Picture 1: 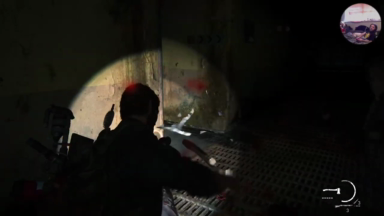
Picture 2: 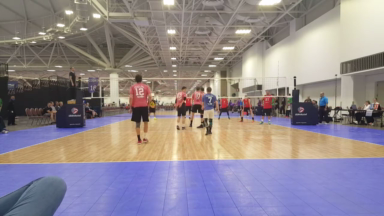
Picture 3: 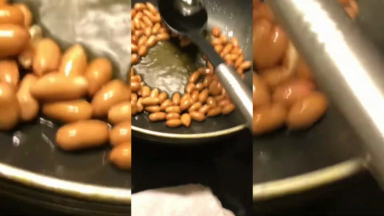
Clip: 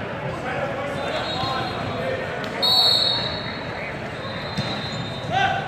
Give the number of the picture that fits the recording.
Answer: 2